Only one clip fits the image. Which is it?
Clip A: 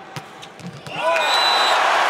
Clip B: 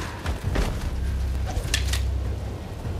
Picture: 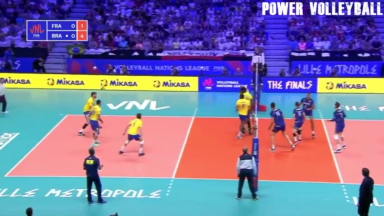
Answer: A